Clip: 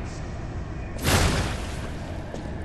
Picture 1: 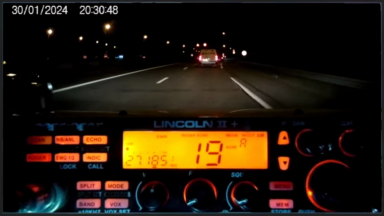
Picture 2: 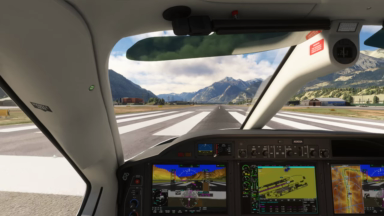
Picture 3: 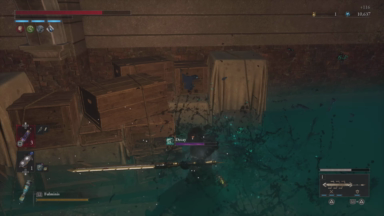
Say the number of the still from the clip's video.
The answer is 3